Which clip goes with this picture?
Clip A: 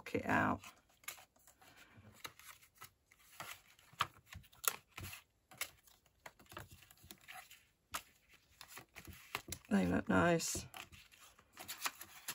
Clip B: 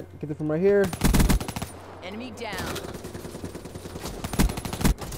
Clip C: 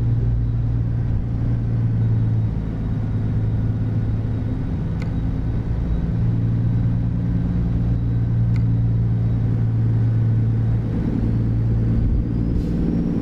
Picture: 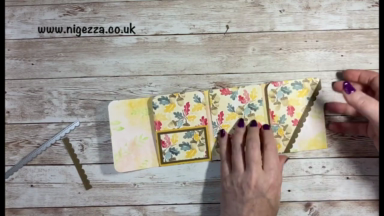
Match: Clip A